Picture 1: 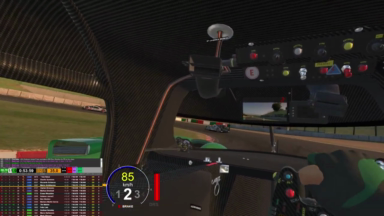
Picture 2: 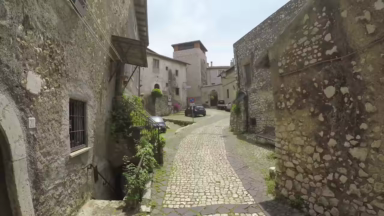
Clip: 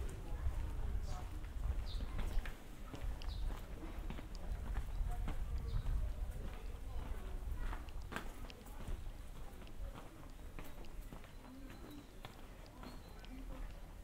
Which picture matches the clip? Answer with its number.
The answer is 2